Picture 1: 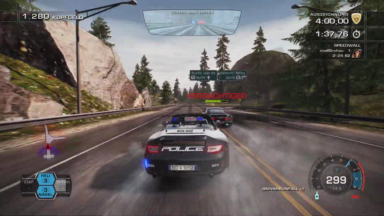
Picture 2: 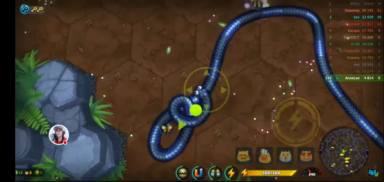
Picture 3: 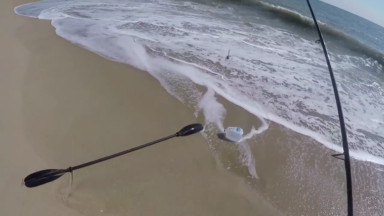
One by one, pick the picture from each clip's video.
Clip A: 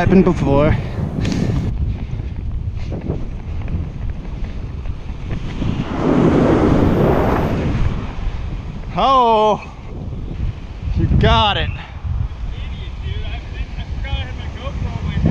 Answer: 3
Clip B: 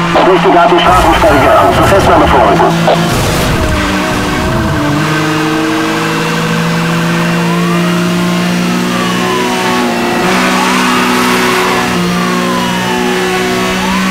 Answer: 1